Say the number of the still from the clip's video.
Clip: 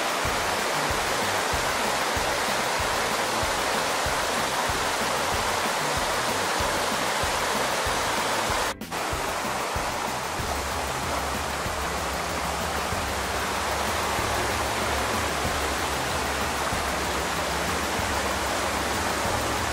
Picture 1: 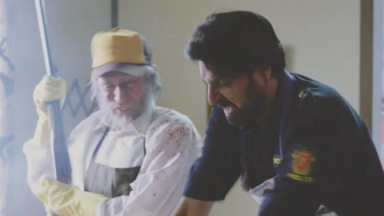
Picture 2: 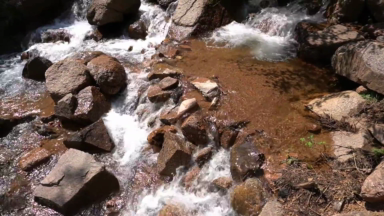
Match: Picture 2